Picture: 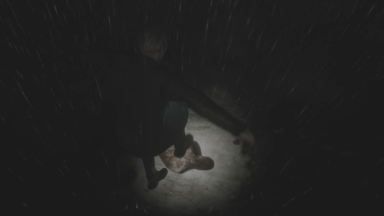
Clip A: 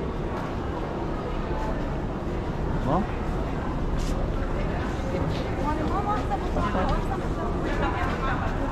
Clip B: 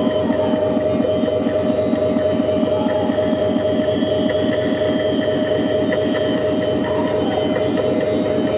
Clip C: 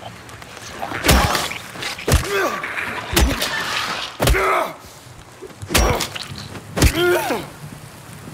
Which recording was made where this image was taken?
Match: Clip C